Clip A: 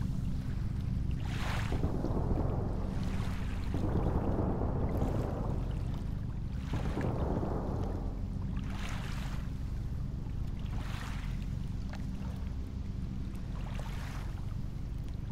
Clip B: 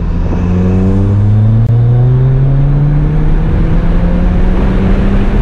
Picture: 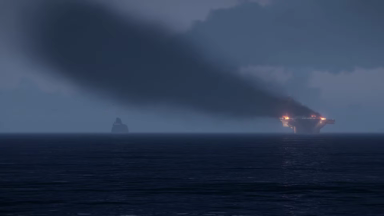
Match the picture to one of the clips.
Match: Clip A